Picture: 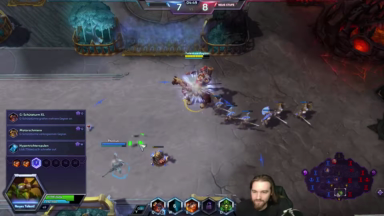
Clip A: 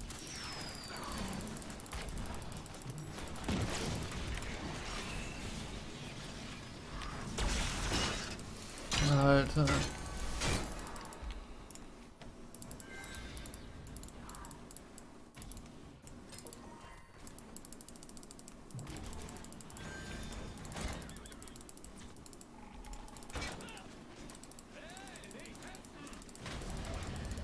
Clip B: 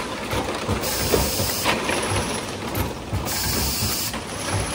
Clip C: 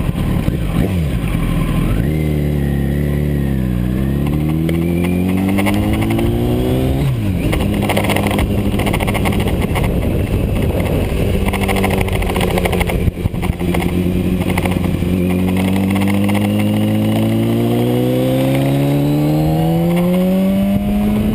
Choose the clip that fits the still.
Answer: A